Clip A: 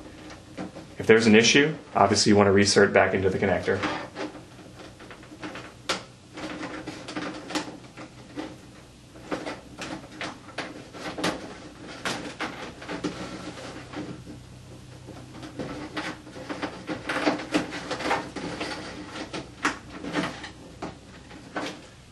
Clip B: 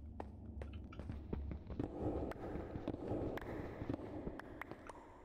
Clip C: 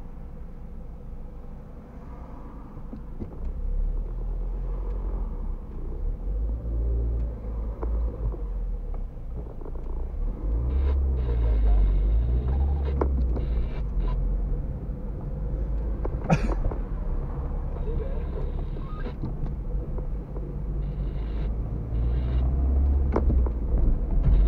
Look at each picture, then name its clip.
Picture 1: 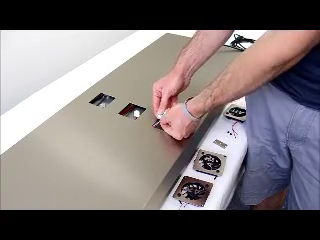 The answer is A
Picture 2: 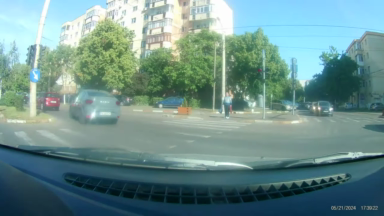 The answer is C